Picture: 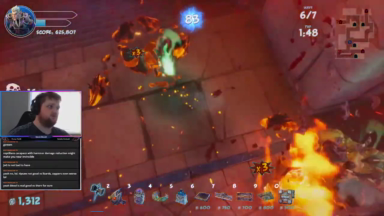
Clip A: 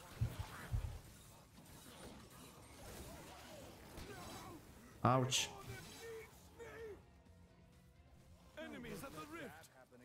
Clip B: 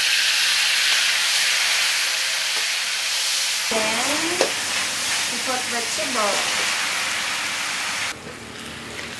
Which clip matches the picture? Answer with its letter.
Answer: A